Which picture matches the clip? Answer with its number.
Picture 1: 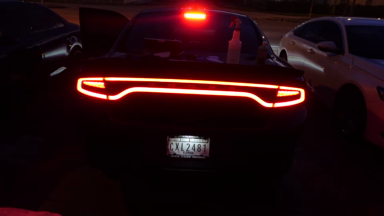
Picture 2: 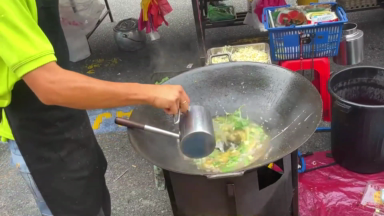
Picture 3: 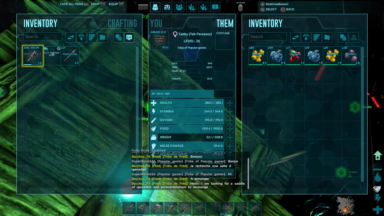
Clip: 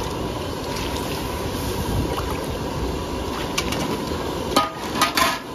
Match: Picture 2